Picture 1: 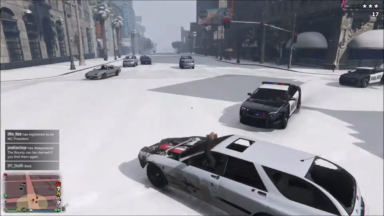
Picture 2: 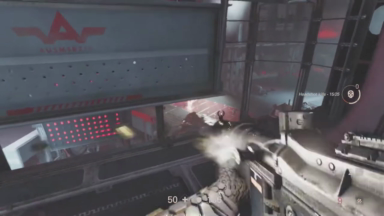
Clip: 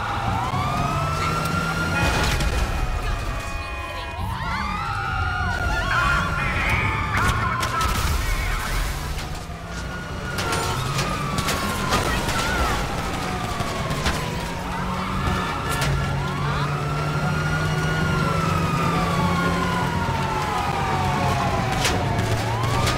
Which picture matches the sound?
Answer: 1